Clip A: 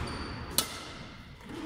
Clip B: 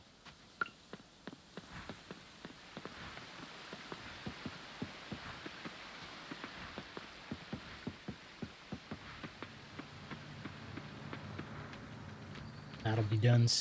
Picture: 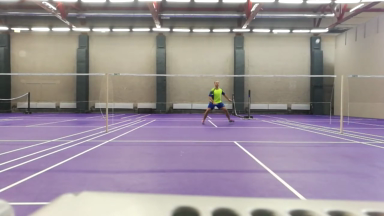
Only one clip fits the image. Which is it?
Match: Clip A